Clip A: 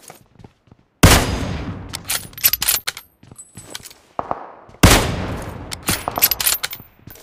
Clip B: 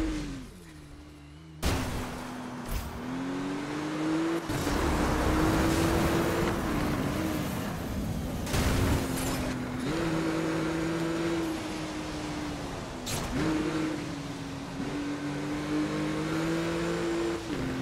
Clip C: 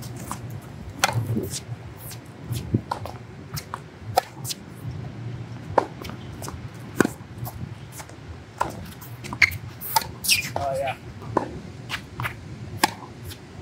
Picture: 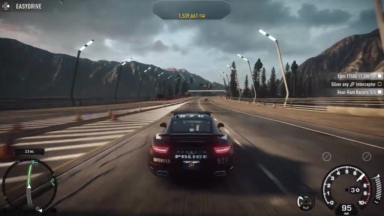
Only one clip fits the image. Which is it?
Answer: B